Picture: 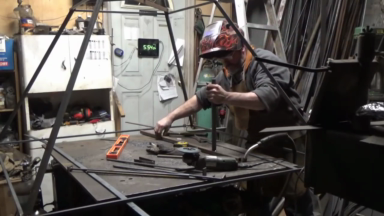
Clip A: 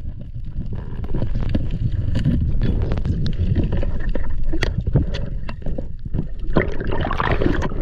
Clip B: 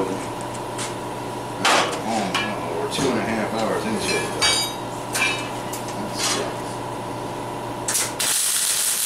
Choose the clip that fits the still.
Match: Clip B